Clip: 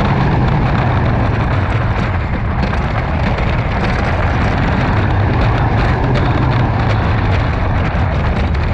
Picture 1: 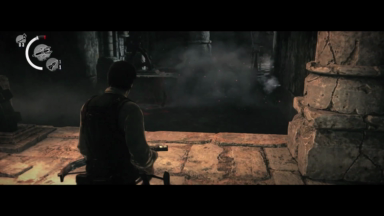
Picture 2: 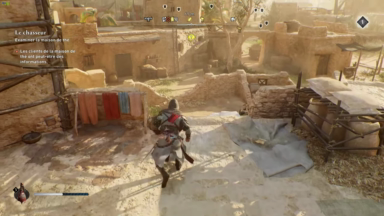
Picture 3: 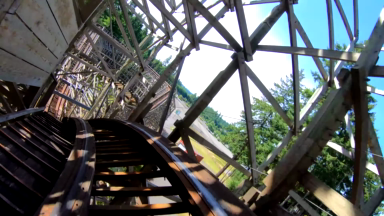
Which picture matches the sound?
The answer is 3